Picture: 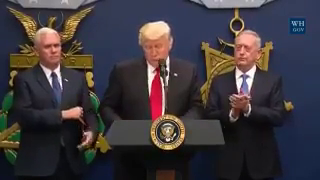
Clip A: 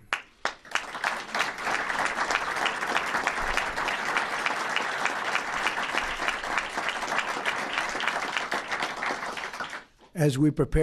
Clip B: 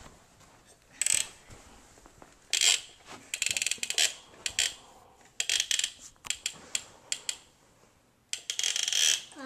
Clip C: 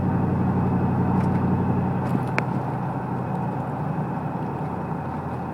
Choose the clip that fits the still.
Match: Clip A